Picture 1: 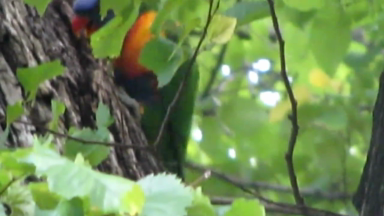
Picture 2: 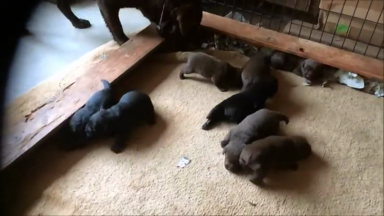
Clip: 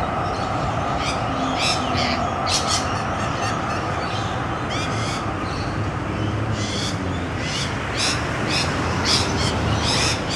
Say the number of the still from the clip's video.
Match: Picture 1